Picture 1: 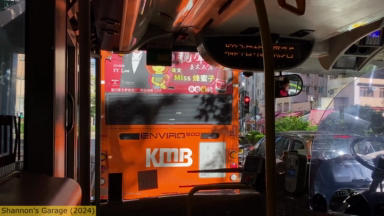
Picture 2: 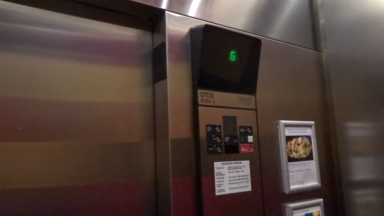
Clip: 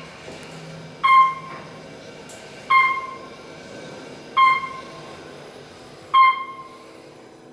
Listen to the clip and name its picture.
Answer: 2